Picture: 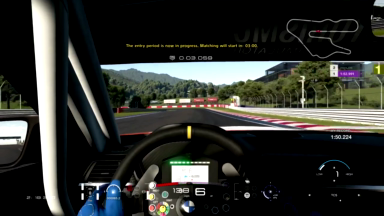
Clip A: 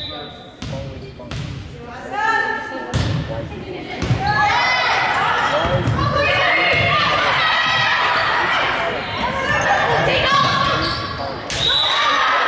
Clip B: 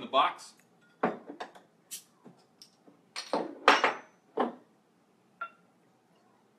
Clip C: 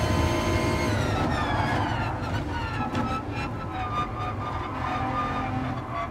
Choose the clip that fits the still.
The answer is C